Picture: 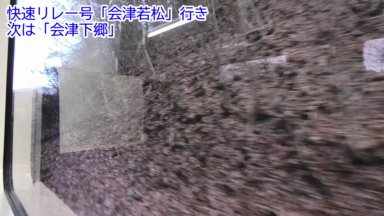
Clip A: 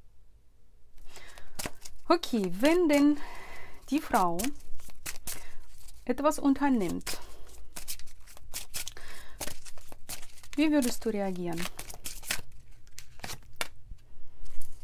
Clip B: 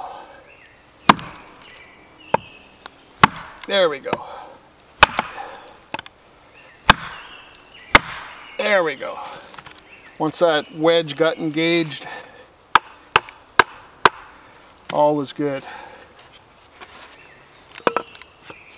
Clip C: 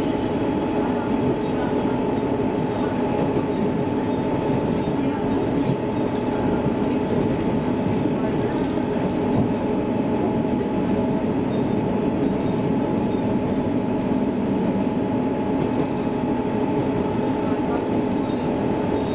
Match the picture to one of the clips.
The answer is C